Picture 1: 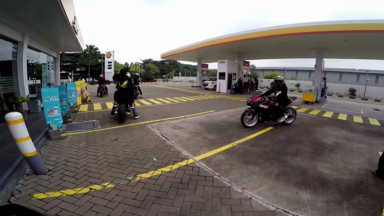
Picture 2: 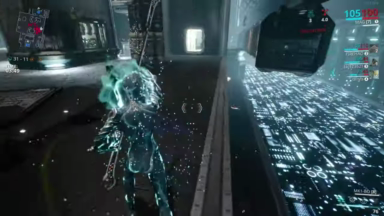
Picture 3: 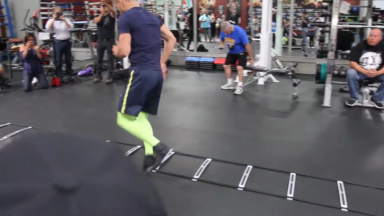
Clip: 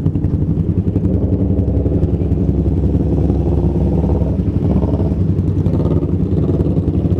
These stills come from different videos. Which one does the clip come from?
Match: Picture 1